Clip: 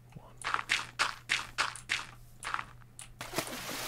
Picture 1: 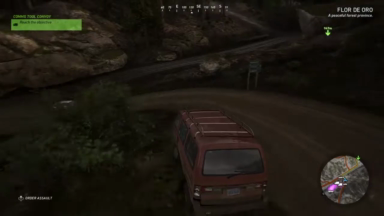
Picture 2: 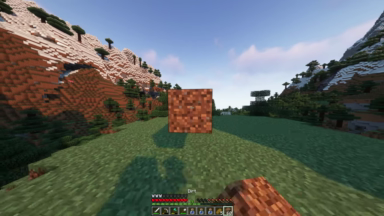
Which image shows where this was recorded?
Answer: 2